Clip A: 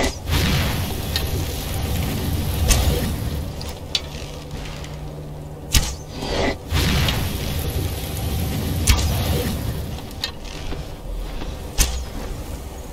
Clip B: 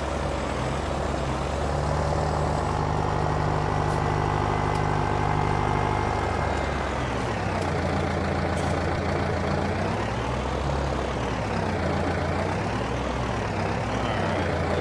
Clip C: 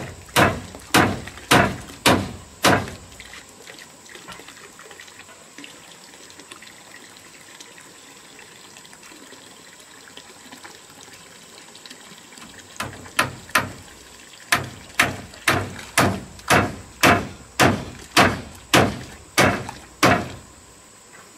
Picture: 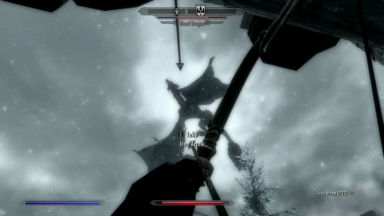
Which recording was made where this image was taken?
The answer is A